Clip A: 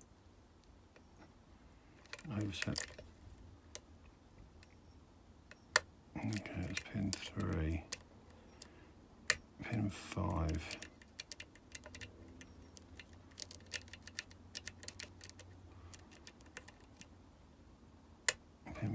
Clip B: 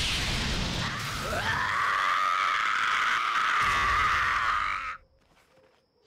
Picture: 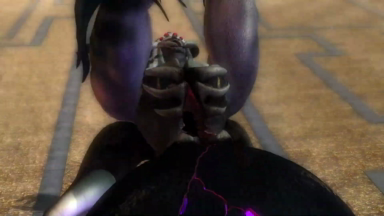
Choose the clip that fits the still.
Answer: B